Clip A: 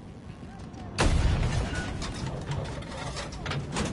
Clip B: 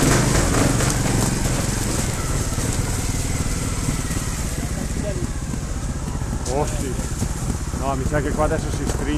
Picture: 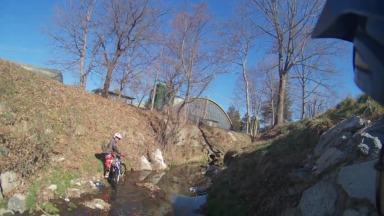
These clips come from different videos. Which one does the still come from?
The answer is B